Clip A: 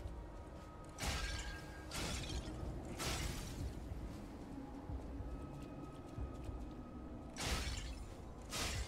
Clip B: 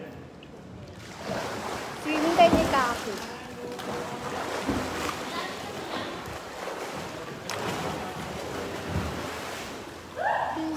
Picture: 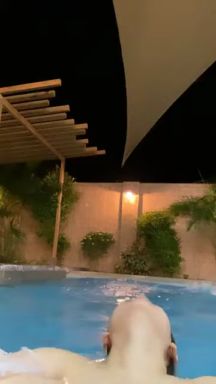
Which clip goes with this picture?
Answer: B